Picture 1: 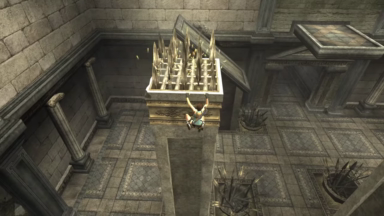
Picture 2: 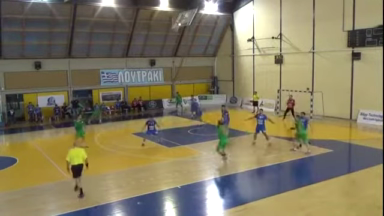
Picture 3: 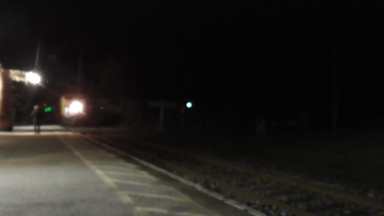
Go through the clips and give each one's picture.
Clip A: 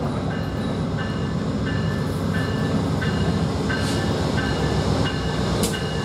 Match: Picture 3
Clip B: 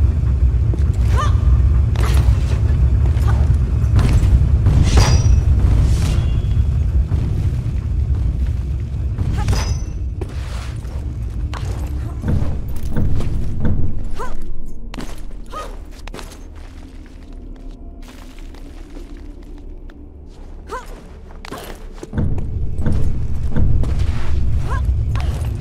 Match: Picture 1